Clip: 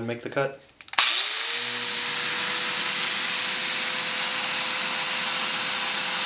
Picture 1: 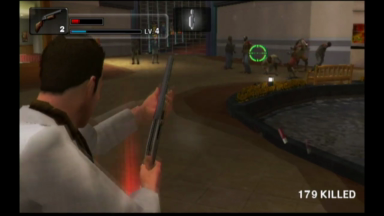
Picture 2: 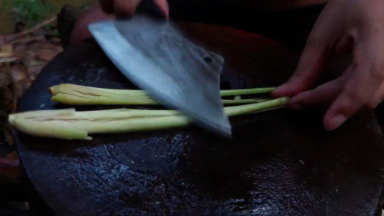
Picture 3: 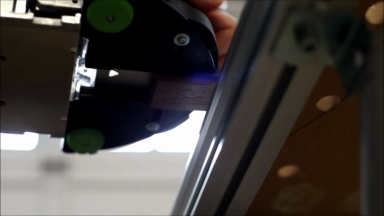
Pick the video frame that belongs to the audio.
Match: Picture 3